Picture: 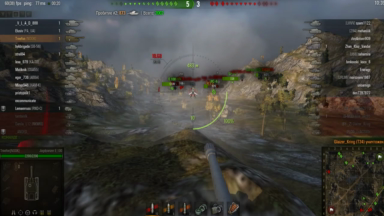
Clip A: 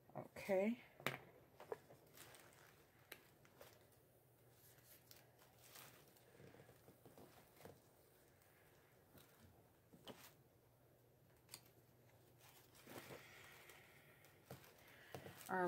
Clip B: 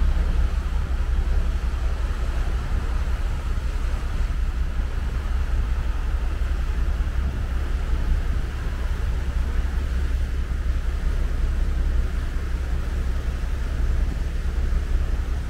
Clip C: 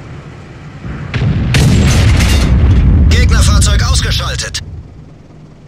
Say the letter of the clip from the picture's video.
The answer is C